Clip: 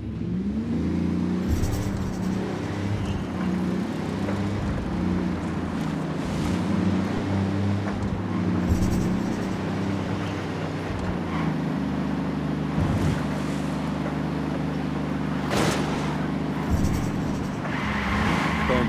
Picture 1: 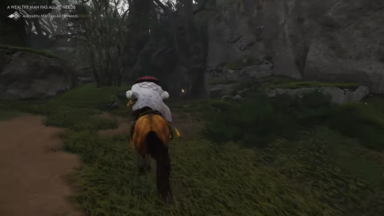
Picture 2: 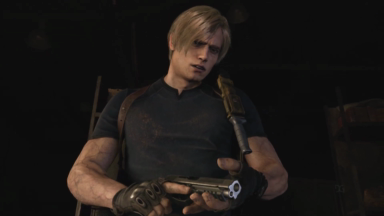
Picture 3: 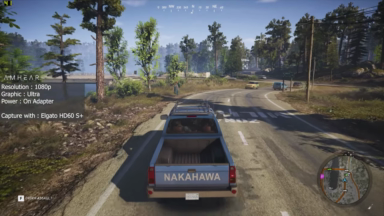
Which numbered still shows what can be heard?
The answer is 3